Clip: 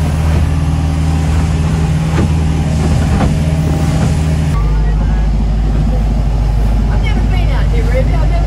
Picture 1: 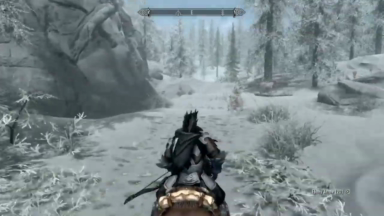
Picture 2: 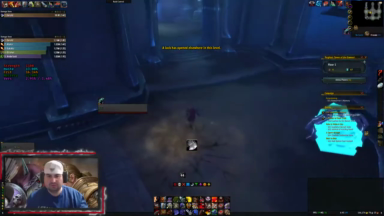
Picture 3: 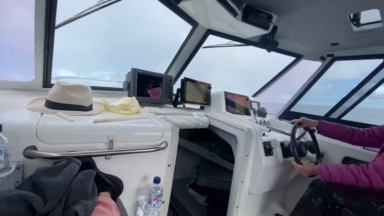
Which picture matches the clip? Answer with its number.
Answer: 3